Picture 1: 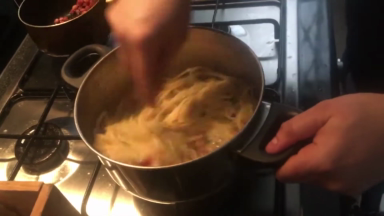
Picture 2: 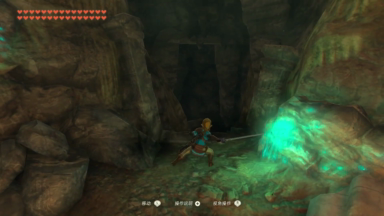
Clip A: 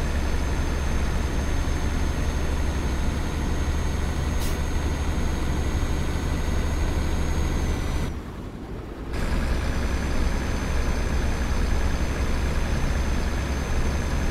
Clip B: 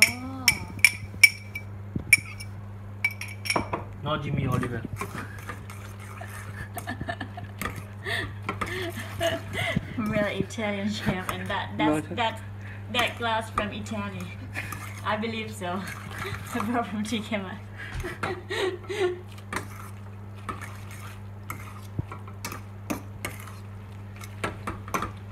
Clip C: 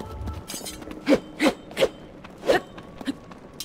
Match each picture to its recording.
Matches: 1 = B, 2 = C